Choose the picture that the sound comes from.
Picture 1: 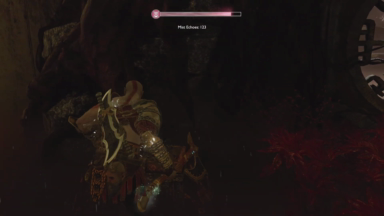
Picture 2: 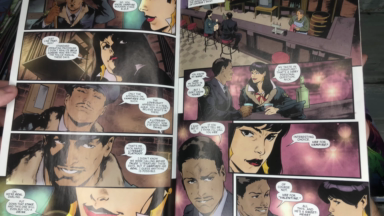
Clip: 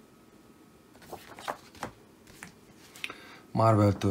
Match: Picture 2